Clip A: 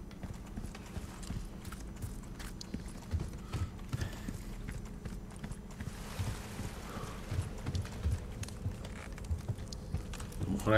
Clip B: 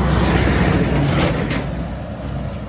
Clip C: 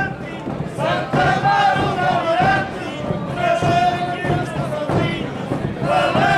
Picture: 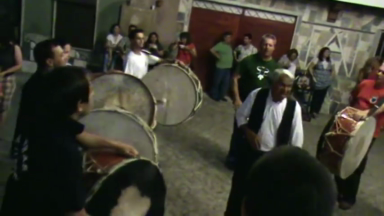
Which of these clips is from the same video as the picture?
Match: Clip C